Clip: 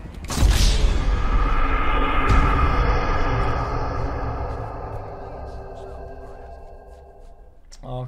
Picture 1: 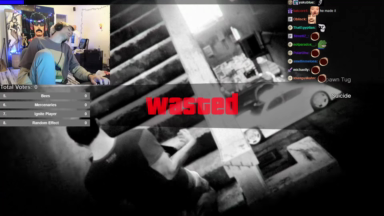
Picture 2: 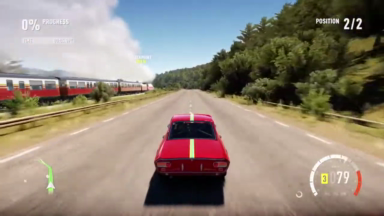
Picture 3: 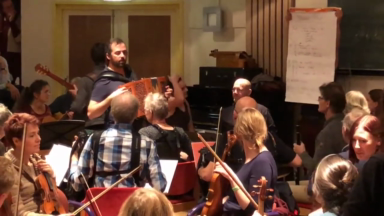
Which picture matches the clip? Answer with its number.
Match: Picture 1